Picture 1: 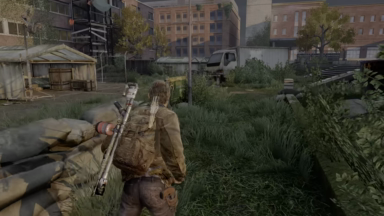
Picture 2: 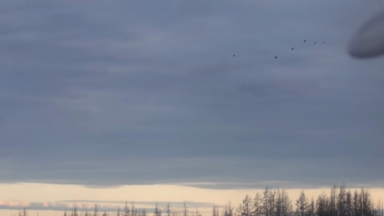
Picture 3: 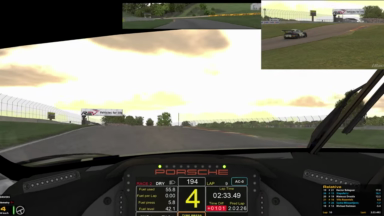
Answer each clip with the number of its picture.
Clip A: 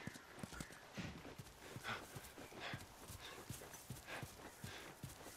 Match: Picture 1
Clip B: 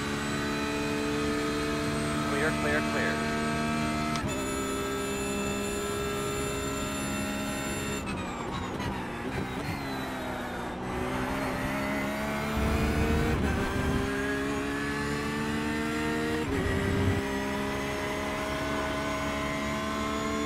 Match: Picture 3